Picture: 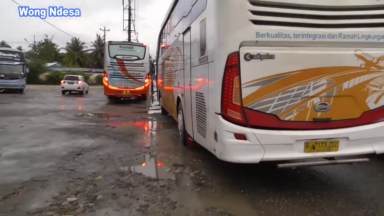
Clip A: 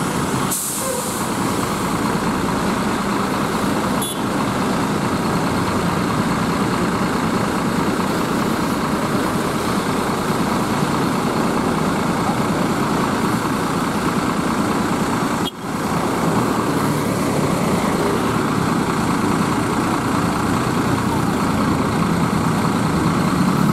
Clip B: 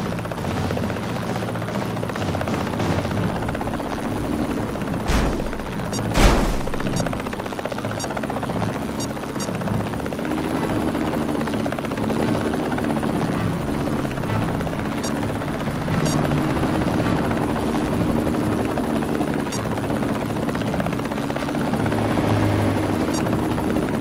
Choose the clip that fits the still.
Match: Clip A